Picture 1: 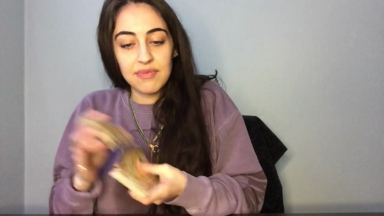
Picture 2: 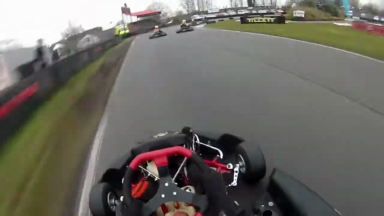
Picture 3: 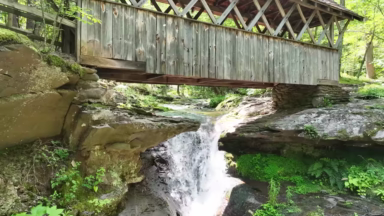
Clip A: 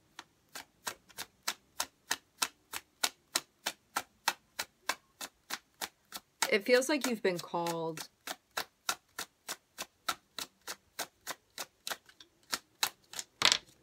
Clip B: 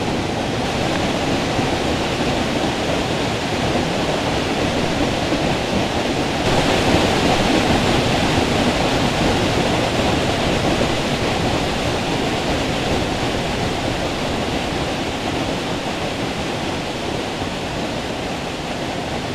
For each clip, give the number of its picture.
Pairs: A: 1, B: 3